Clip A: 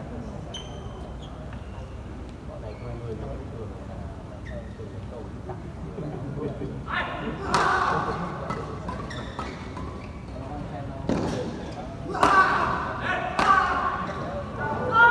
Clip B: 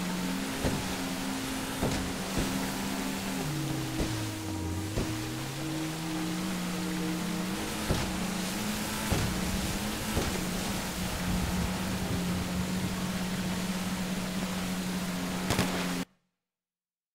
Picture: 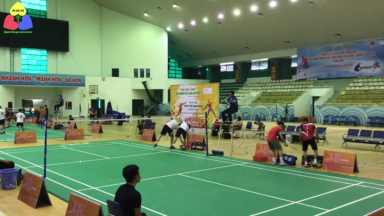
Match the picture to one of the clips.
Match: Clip A